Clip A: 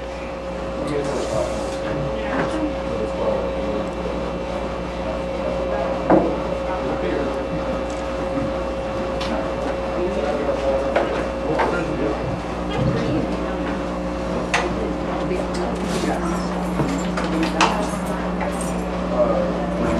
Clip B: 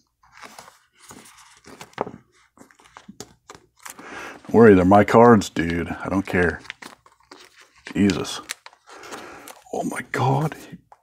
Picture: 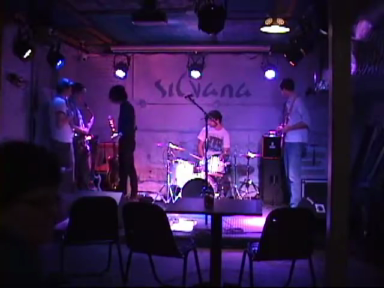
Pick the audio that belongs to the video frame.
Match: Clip A